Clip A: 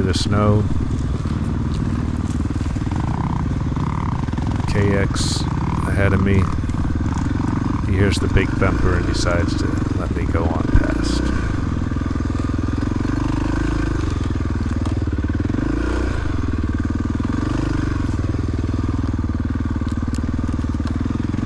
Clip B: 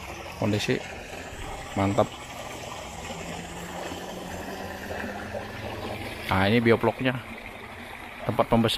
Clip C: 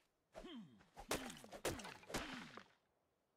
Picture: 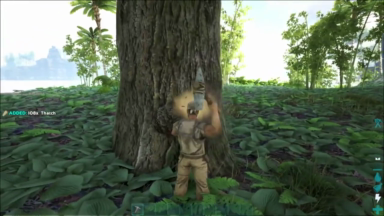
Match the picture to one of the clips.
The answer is C